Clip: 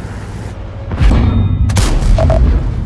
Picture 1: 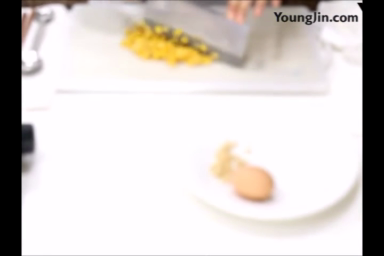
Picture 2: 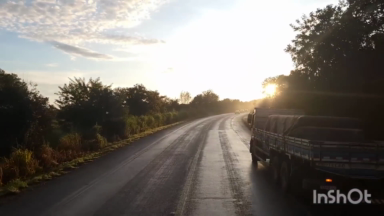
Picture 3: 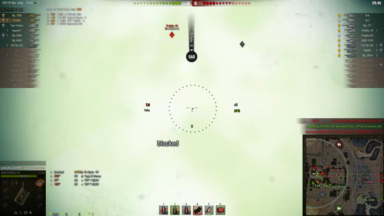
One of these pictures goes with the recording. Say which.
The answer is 3